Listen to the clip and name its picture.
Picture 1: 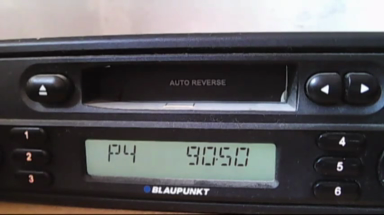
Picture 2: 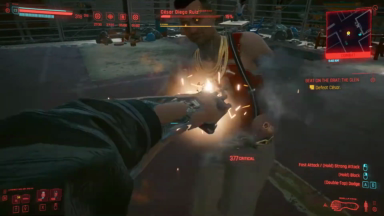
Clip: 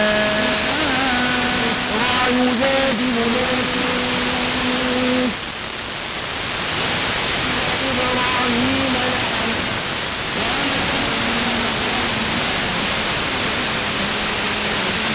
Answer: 1